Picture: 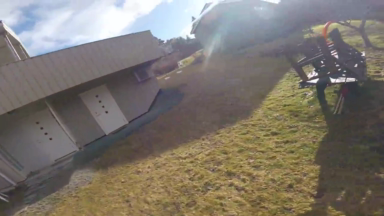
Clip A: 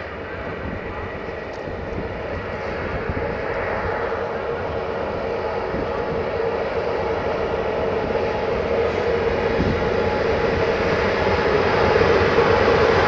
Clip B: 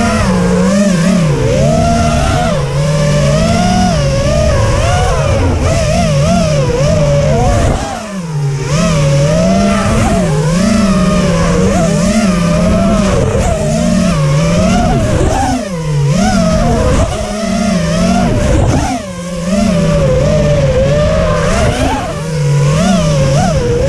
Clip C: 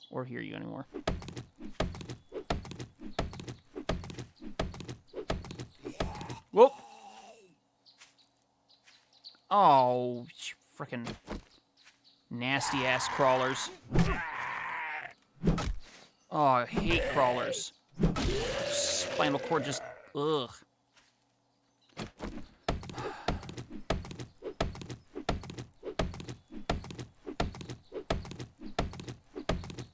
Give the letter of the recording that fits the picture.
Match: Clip B